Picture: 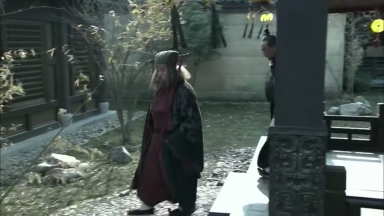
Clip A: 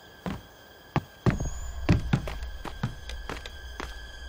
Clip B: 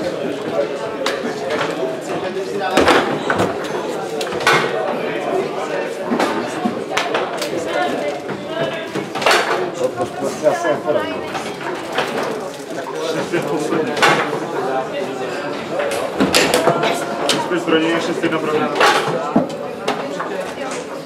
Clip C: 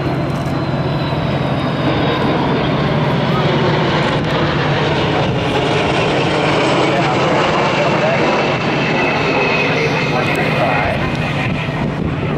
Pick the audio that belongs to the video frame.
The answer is A